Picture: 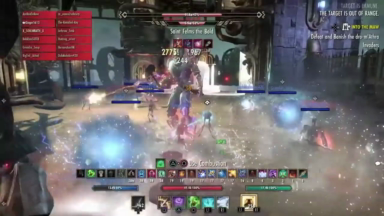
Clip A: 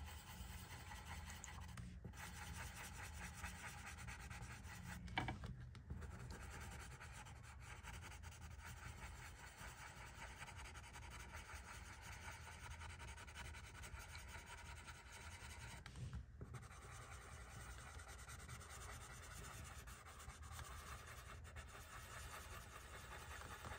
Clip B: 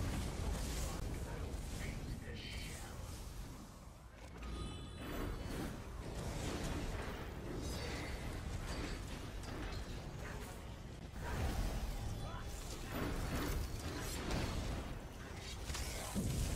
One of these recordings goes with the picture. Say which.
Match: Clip B